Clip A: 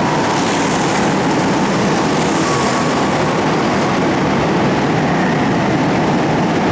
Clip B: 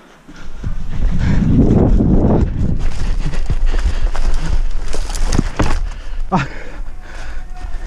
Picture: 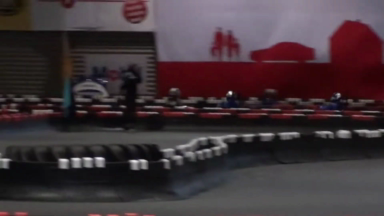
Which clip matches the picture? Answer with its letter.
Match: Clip A